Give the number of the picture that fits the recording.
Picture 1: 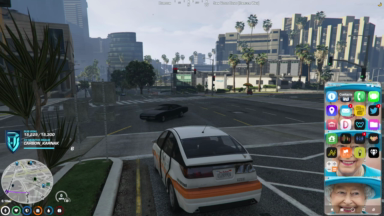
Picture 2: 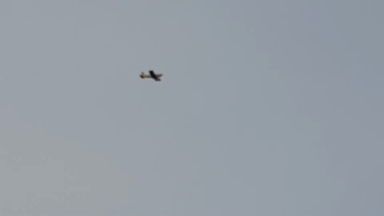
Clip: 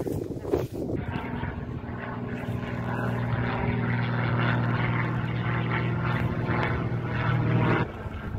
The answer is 2